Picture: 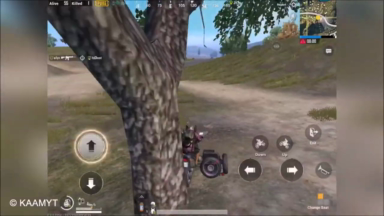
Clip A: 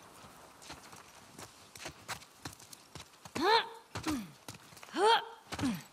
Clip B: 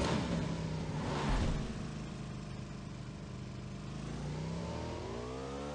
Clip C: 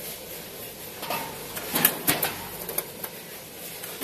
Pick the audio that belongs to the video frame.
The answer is B